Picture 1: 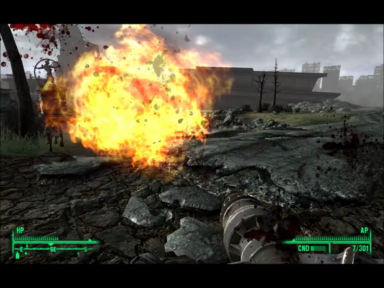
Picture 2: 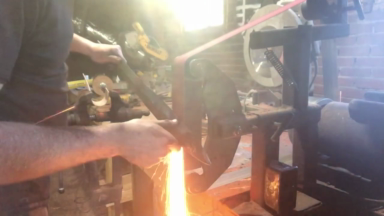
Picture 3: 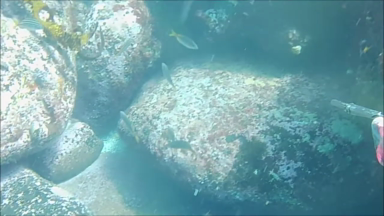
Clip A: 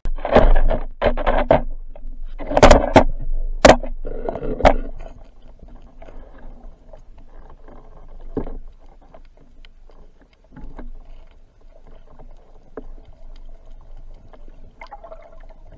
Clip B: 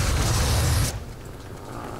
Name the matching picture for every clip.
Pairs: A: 3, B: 1